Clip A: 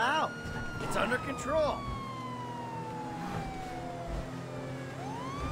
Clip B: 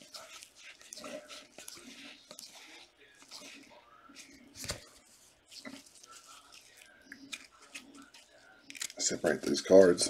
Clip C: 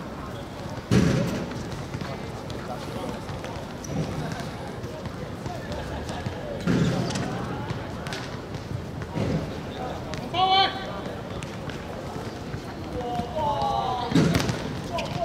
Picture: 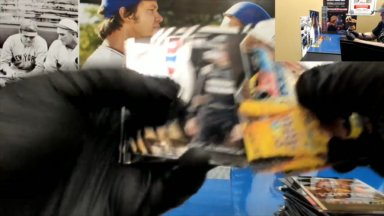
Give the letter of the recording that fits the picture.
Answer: B